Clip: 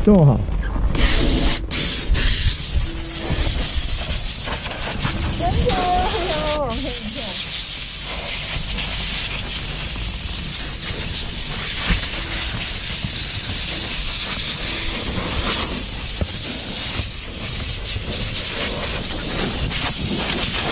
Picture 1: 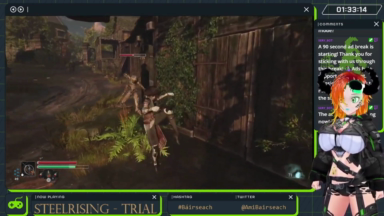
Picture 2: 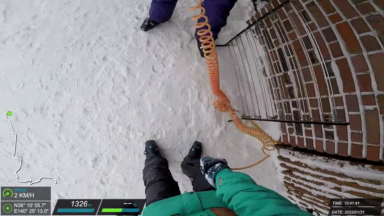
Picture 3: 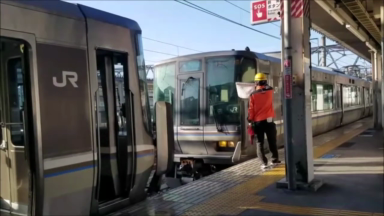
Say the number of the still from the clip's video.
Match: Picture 2